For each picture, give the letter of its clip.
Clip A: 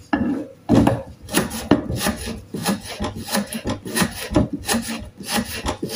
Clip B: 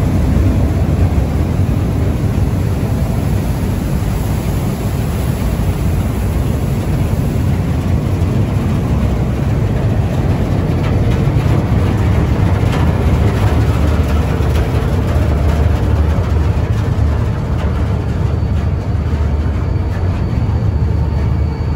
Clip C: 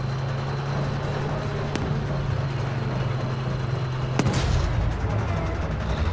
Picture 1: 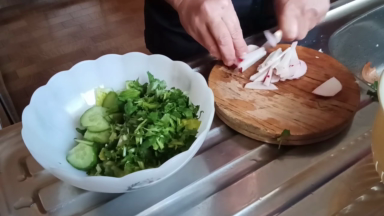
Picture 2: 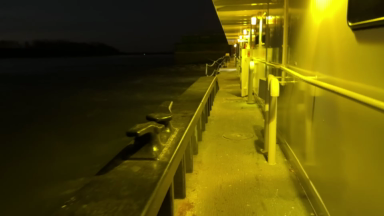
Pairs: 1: A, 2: B